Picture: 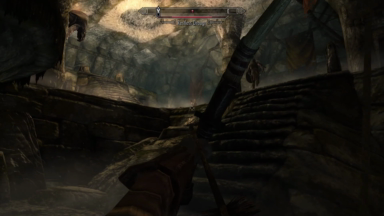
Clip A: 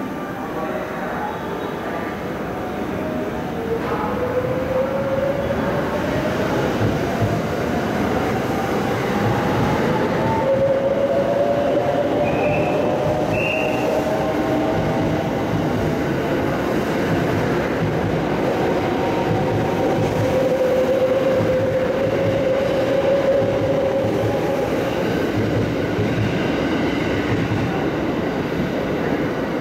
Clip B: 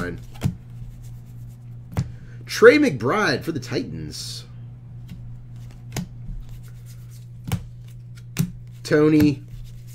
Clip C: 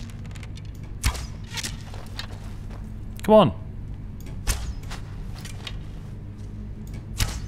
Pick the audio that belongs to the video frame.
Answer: C